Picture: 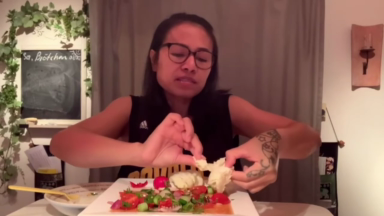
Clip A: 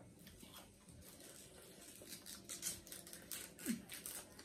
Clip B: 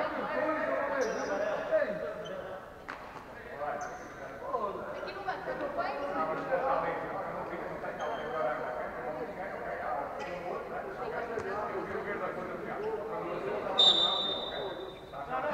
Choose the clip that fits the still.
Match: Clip A